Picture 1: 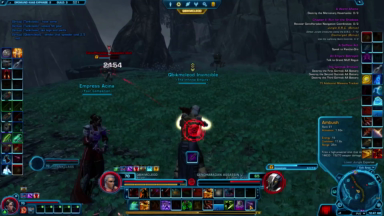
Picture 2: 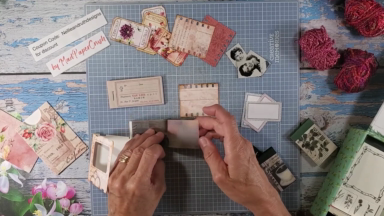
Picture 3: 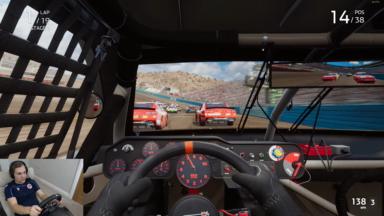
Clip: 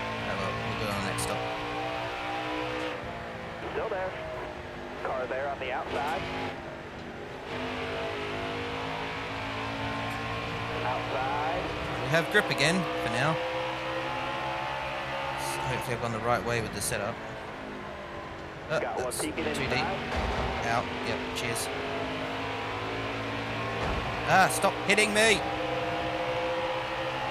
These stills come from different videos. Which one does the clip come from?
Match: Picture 3